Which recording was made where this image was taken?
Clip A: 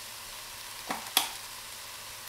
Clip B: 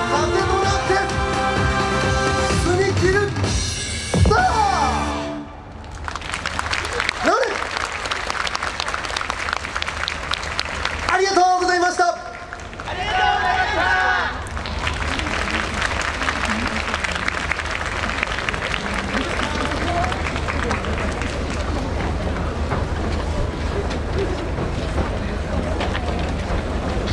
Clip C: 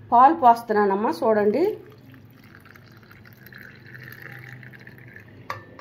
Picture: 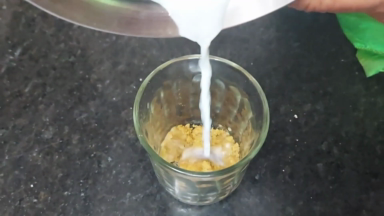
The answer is C